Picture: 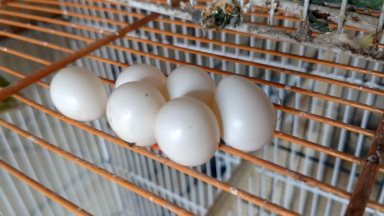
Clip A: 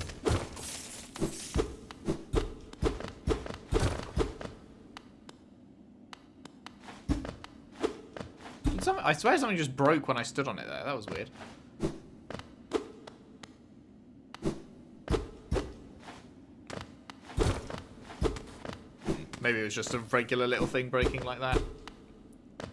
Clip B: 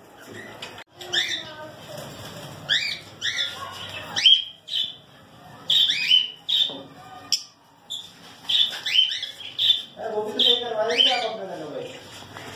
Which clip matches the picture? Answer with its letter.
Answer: B